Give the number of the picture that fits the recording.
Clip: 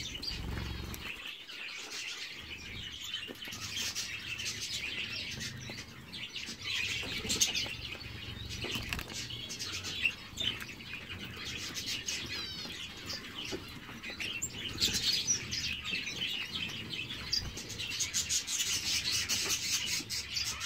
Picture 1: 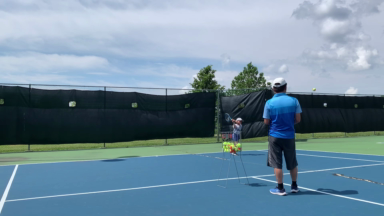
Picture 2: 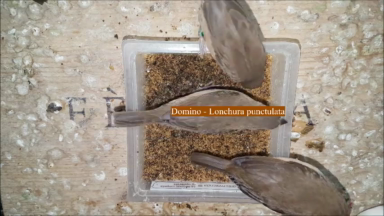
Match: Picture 2